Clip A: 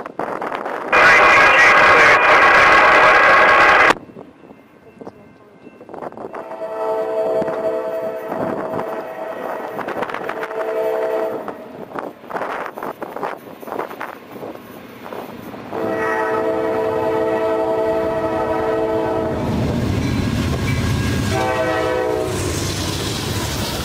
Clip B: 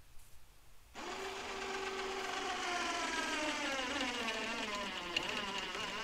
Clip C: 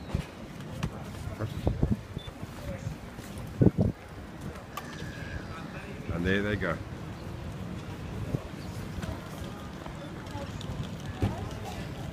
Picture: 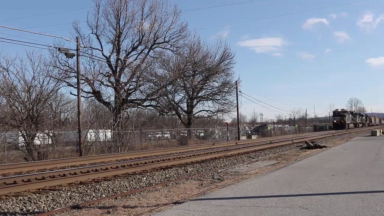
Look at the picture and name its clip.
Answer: A